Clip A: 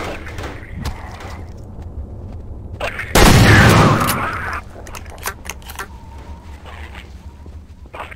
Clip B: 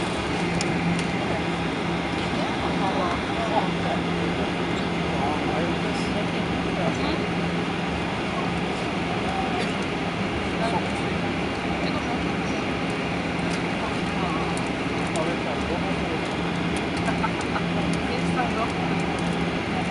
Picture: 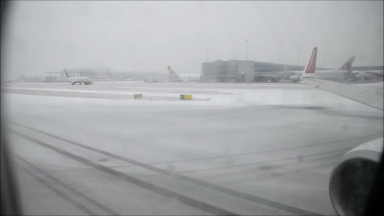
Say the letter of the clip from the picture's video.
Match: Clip B